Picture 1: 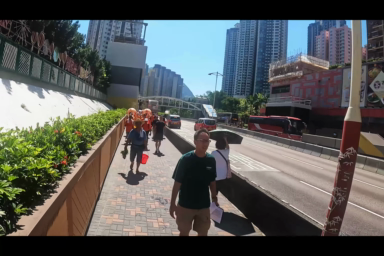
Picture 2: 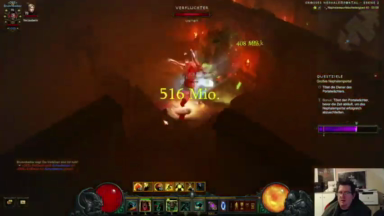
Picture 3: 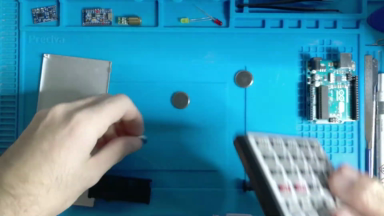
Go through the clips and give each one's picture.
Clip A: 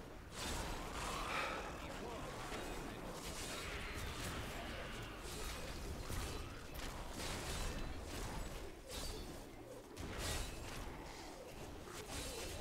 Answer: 2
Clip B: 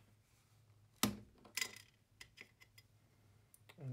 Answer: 3